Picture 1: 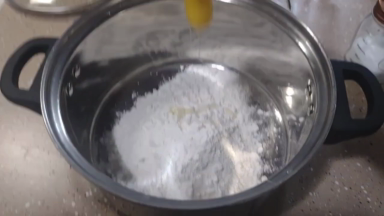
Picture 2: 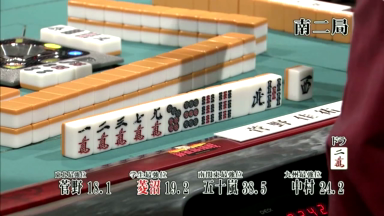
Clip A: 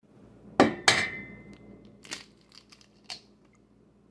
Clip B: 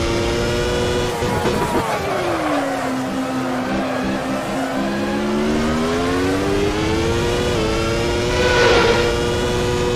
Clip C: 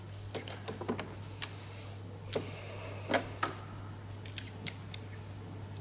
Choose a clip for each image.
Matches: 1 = A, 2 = C